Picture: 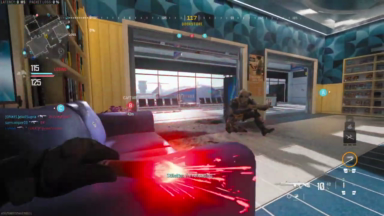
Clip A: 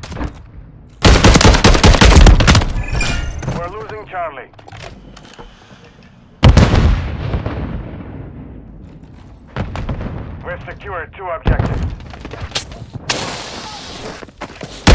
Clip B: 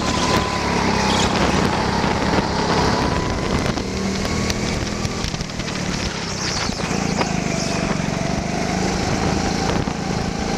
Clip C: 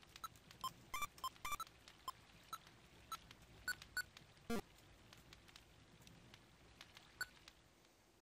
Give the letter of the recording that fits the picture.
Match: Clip A